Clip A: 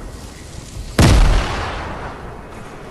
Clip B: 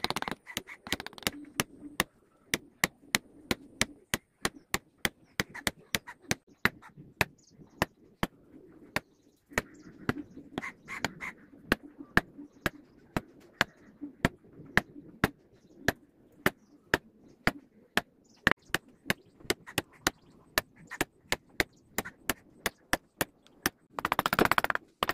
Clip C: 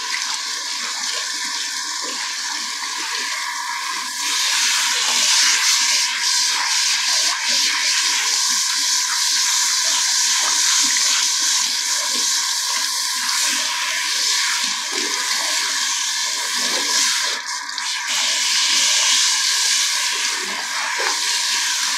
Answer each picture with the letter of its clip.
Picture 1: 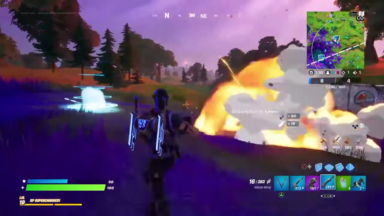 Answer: A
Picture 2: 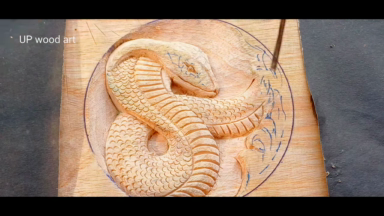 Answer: B